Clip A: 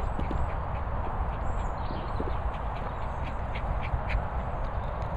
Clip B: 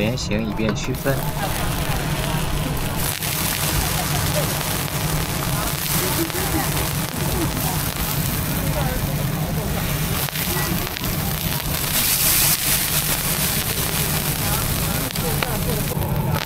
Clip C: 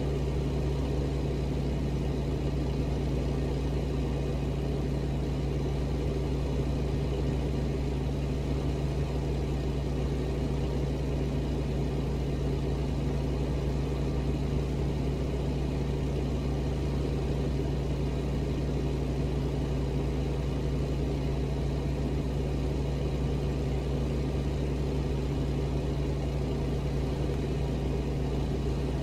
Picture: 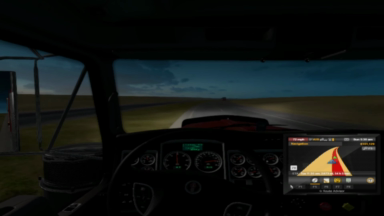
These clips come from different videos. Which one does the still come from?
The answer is C